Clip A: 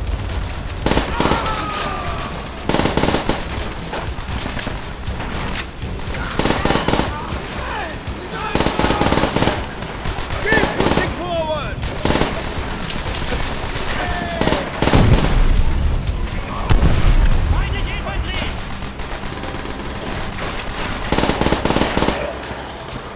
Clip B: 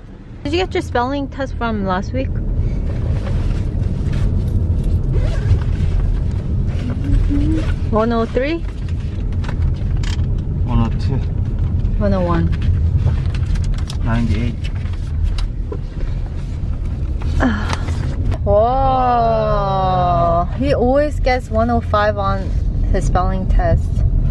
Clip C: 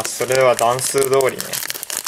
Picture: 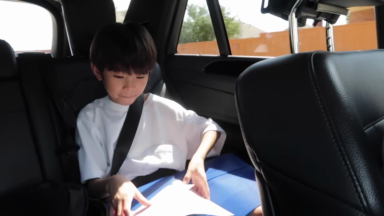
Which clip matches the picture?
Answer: B